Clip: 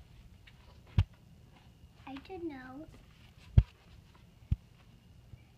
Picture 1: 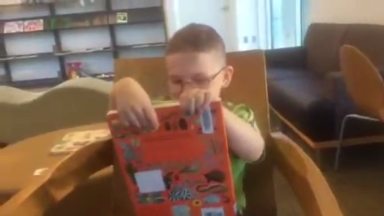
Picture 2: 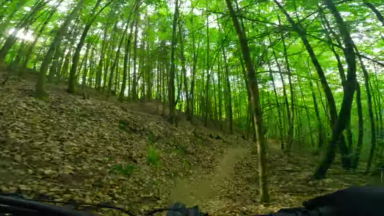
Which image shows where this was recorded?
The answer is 1